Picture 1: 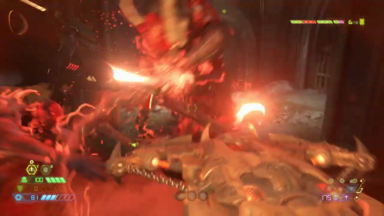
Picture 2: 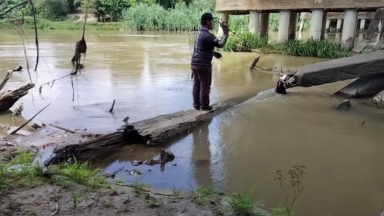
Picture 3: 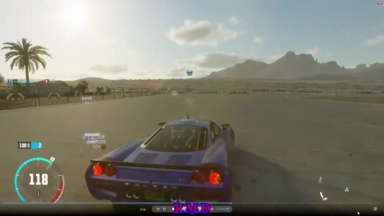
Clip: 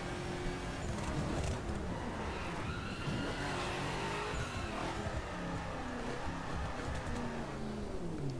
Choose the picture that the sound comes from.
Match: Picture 3